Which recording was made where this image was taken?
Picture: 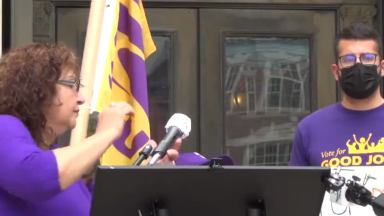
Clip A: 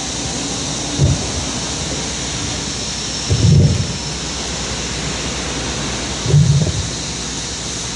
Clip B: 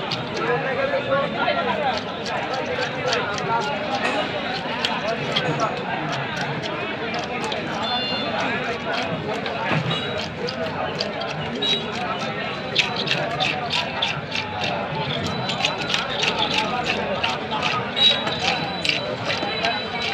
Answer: A